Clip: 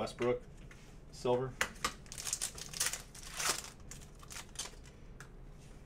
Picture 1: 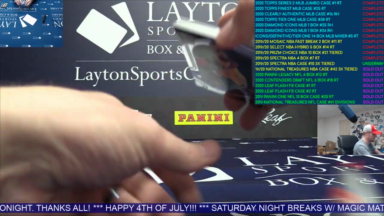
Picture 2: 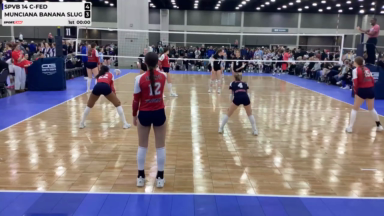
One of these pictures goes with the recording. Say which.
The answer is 1